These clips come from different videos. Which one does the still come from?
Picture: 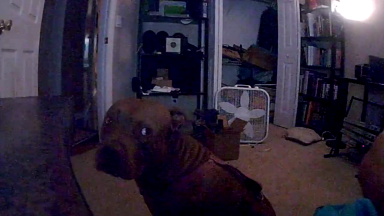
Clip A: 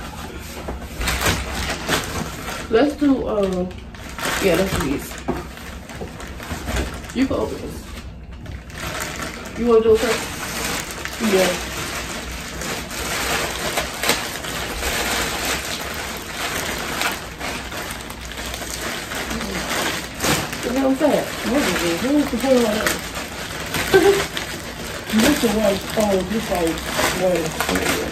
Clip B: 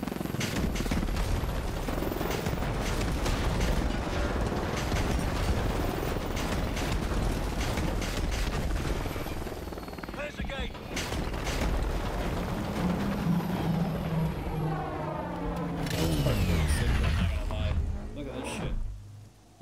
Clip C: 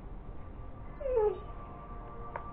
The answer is C